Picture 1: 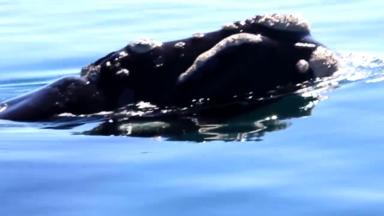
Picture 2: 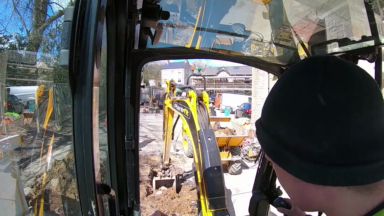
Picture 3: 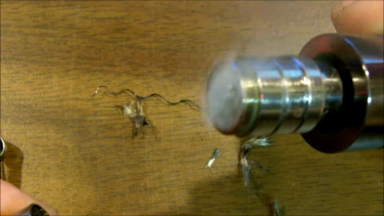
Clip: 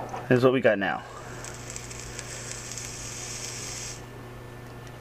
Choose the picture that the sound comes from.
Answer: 3